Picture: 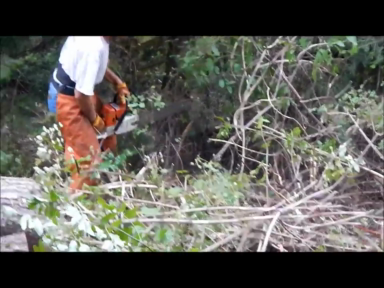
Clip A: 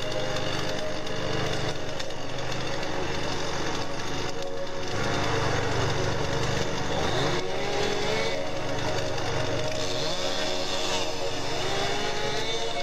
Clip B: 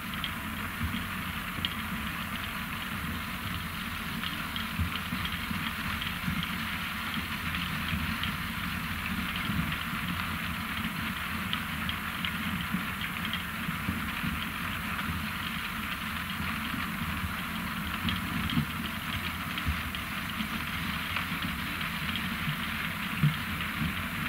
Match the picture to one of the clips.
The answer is A